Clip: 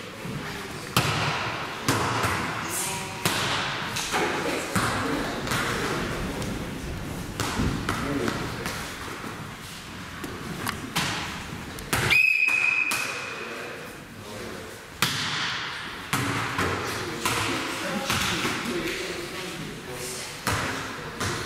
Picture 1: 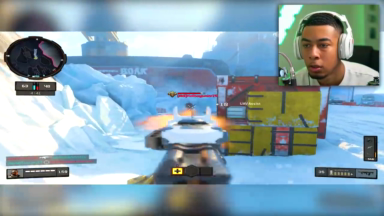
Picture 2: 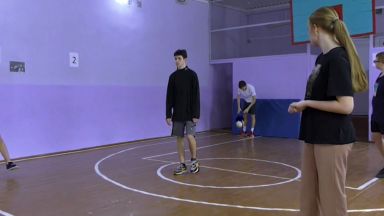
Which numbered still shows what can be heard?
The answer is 2